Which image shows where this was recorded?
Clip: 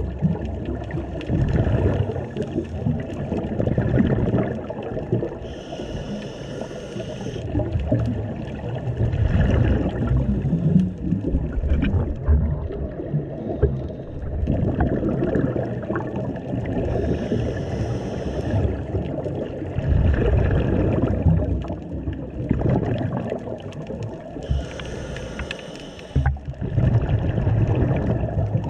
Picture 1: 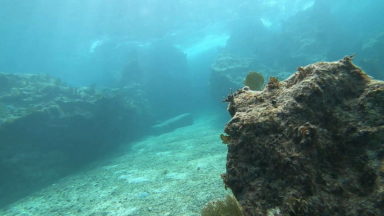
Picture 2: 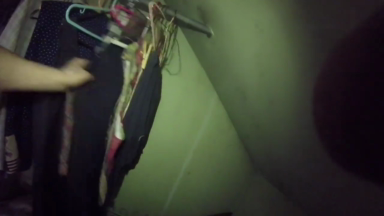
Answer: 1